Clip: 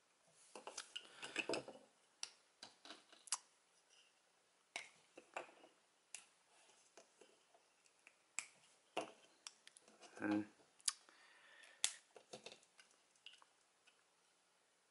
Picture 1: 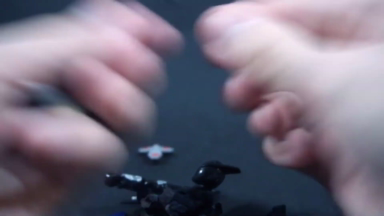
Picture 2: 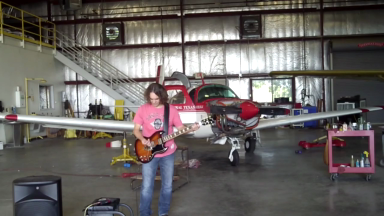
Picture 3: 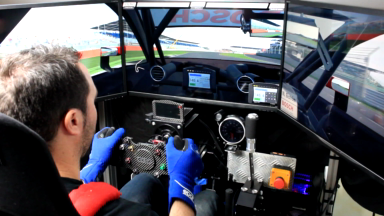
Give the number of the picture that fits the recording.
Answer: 1